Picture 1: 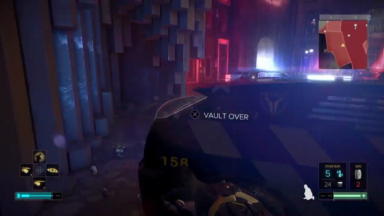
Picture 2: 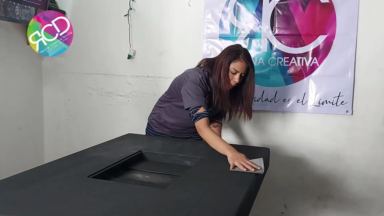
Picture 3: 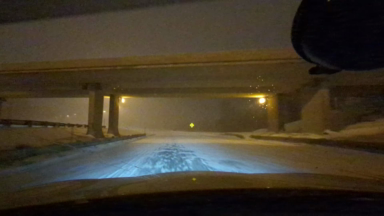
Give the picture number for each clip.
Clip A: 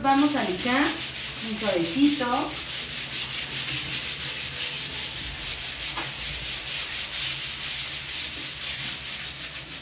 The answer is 2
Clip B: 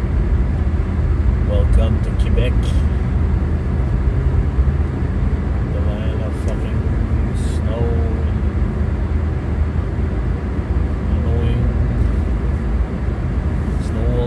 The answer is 3